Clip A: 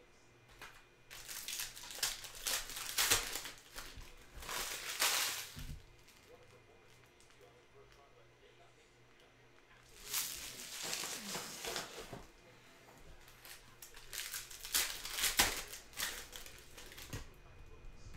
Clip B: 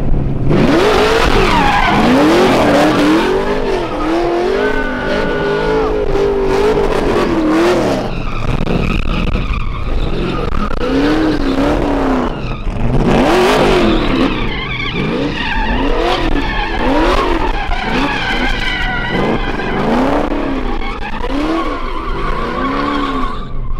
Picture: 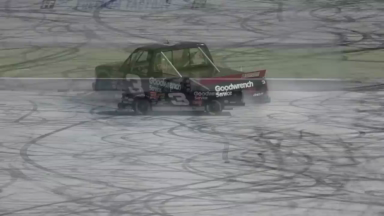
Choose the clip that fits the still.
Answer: B